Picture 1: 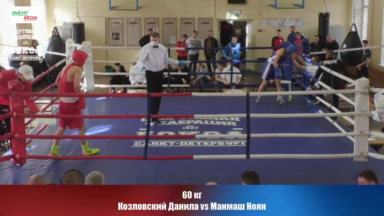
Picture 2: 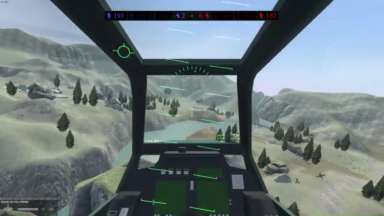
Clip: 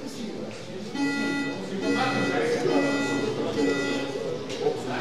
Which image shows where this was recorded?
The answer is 1